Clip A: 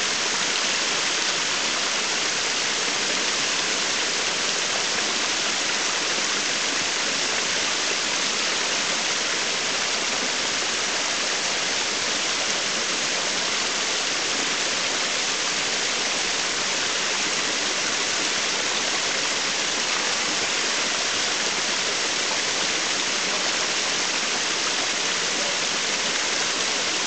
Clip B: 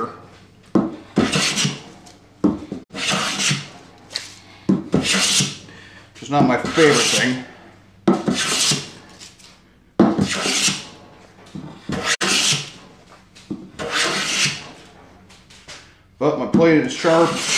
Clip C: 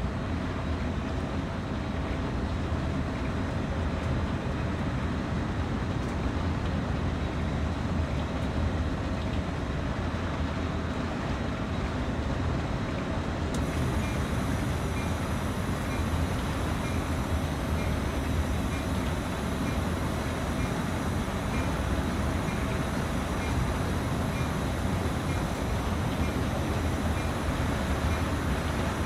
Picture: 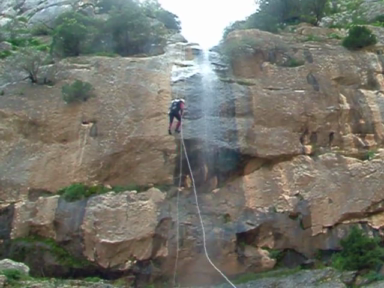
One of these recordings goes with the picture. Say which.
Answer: A